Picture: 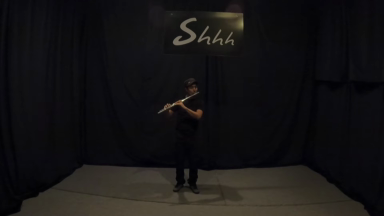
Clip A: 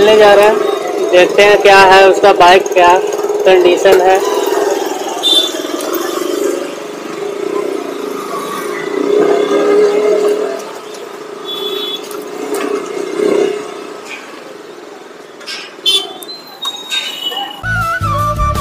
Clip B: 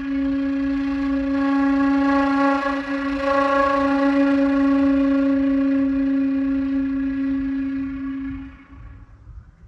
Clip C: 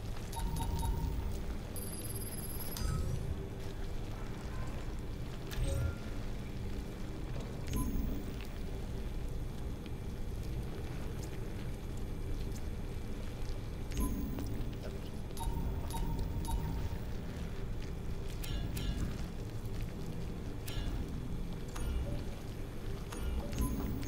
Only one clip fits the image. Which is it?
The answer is B